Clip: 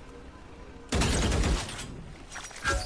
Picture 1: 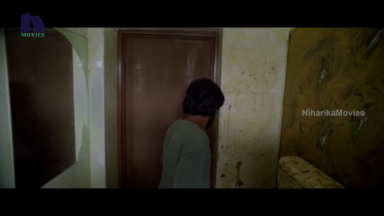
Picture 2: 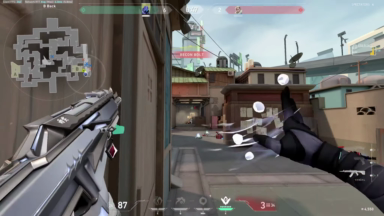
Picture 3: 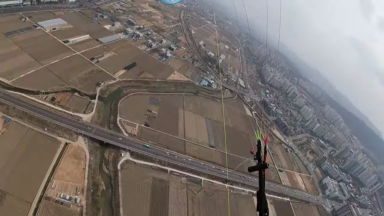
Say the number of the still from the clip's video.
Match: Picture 2